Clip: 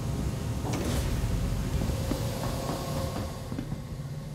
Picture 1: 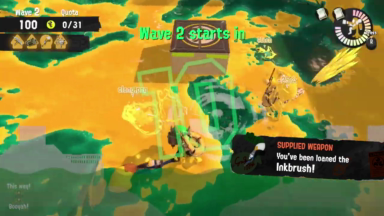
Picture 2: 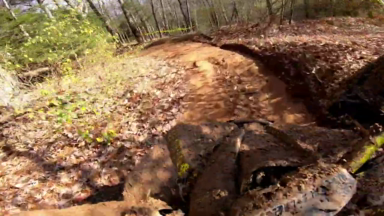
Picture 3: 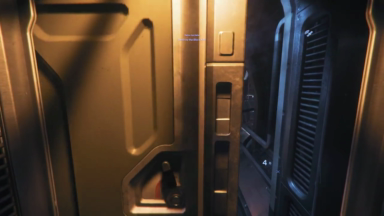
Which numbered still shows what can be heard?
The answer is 3